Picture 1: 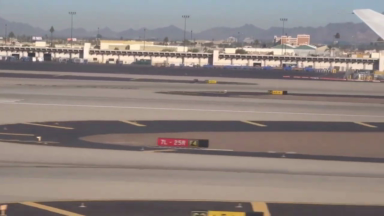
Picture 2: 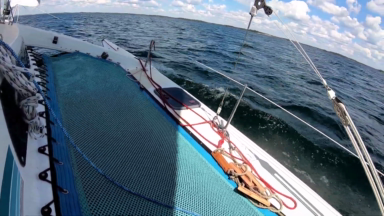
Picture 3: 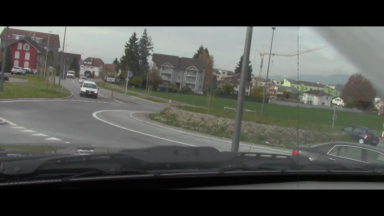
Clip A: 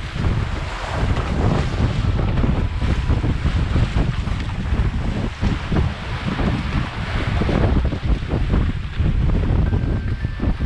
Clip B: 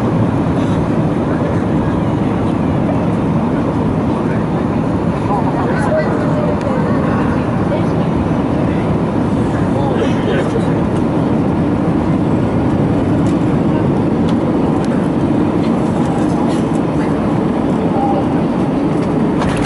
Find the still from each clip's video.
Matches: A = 2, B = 1